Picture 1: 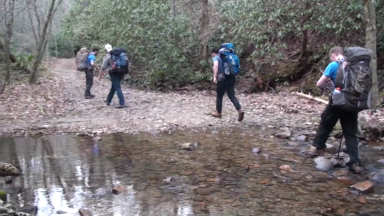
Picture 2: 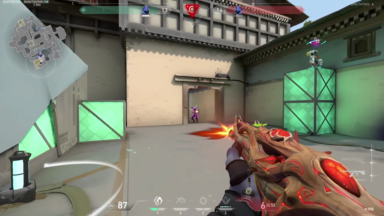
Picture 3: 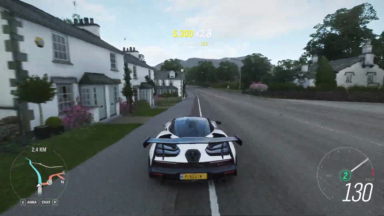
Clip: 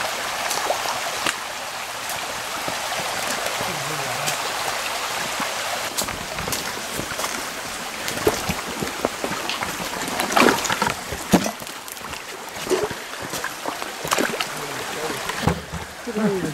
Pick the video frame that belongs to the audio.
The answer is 1